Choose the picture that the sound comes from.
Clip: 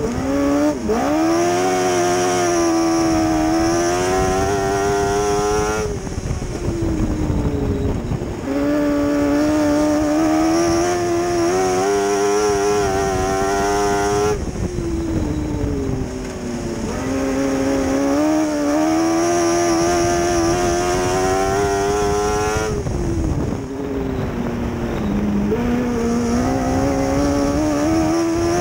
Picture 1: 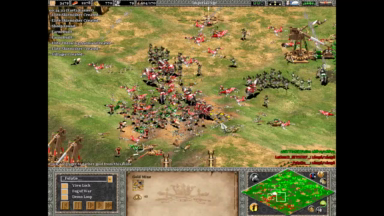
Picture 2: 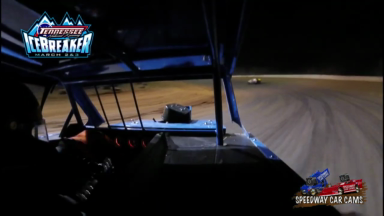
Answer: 2